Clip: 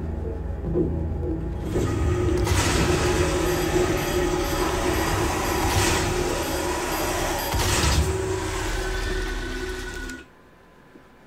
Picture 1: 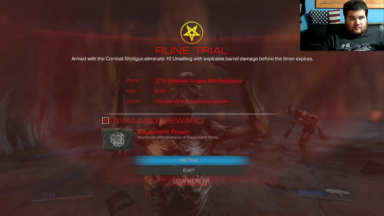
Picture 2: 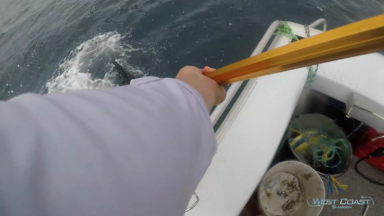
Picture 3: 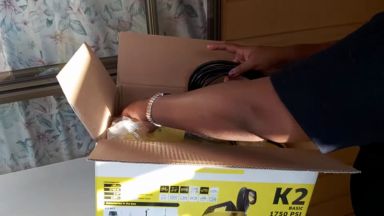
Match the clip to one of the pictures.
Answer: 1